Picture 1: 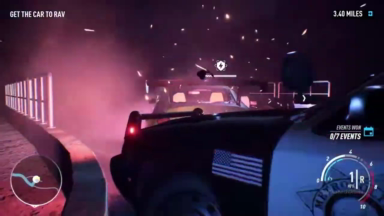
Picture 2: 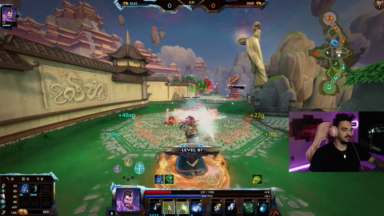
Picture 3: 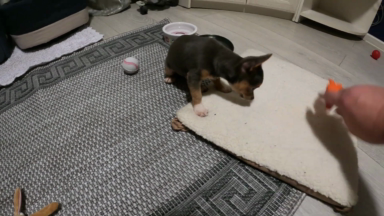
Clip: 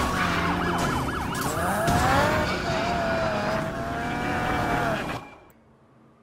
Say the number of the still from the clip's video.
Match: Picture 1